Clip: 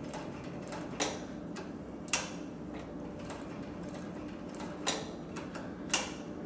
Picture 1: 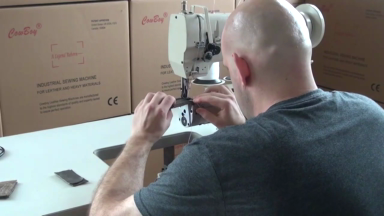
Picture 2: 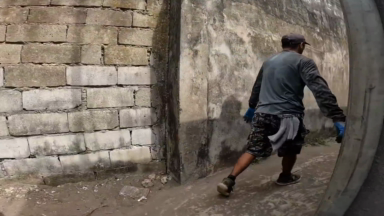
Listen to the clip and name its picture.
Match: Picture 1